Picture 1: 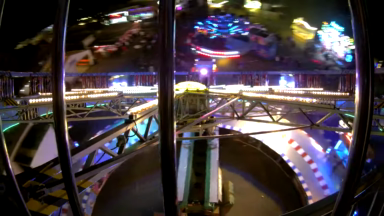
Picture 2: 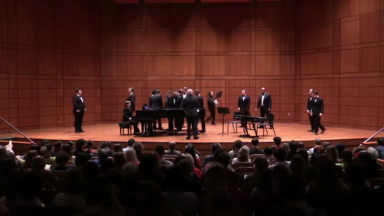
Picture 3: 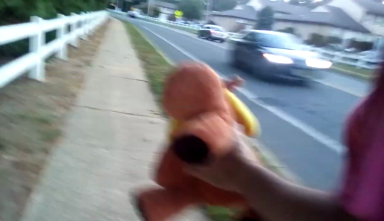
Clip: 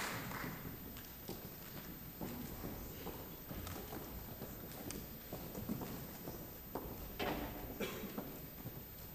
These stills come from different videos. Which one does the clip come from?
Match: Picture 2